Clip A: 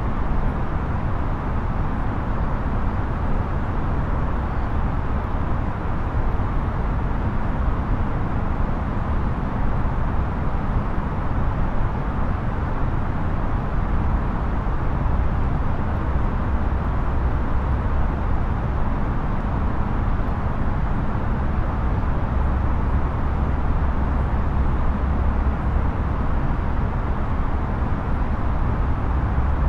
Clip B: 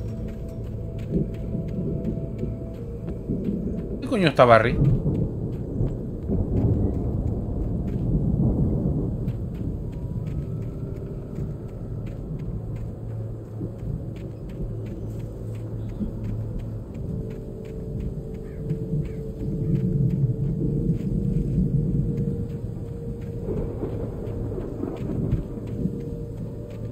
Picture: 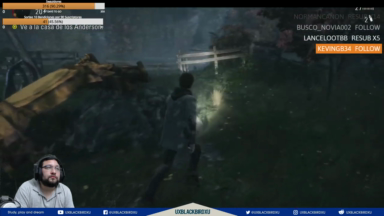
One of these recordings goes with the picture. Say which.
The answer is B